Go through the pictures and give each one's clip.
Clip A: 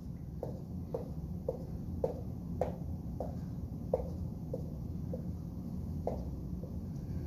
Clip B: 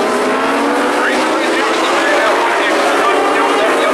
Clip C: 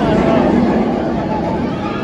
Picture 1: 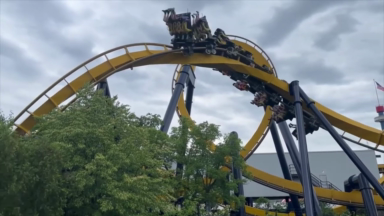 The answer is C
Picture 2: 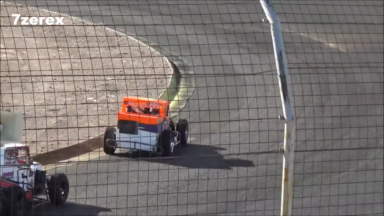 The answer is B